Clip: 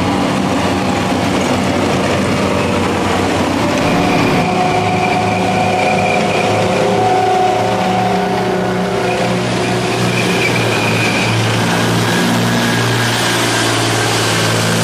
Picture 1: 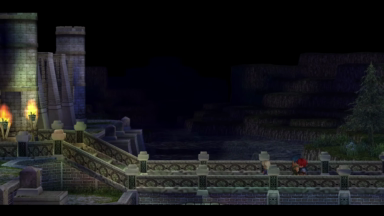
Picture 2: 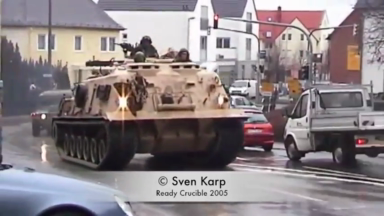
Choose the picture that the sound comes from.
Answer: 2